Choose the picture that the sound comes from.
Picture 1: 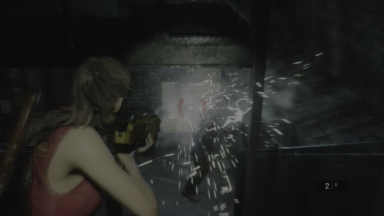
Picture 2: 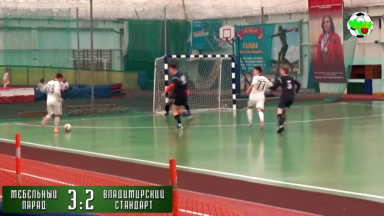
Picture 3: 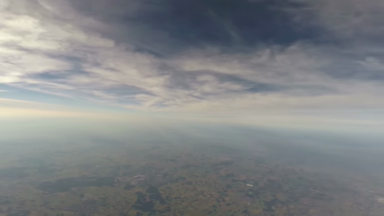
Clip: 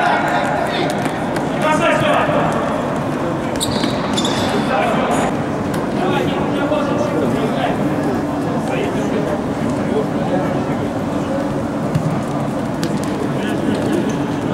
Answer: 2